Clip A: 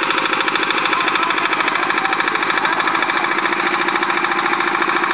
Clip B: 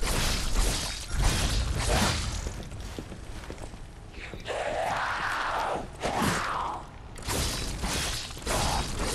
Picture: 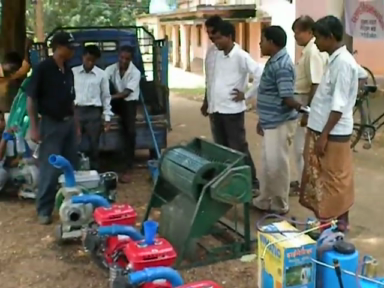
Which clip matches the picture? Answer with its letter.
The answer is A